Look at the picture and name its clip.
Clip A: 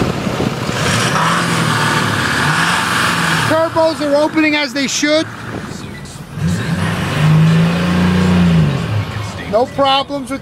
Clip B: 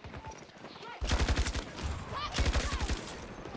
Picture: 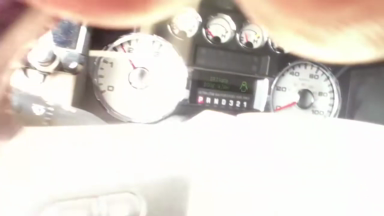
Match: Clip A